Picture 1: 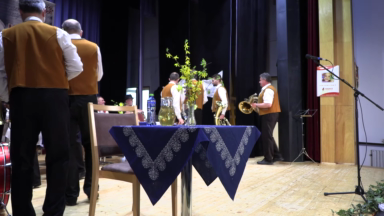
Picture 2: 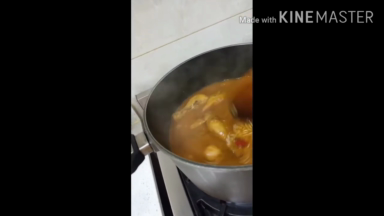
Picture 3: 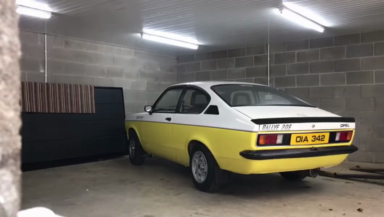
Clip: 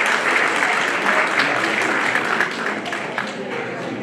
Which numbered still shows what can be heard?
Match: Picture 1